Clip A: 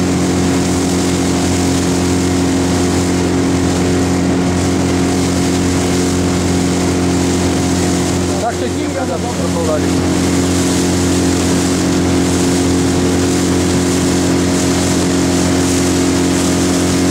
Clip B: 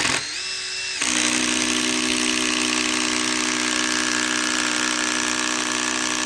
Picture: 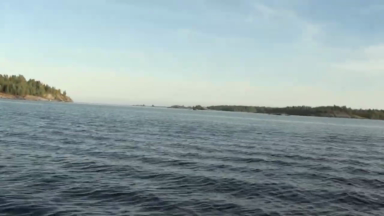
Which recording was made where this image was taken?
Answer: A